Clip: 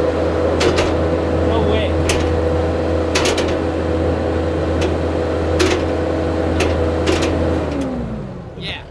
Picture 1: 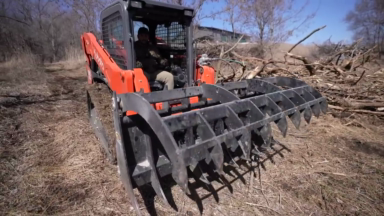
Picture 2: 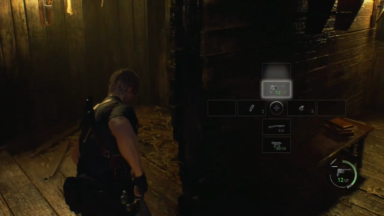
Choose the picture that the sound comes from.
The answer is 1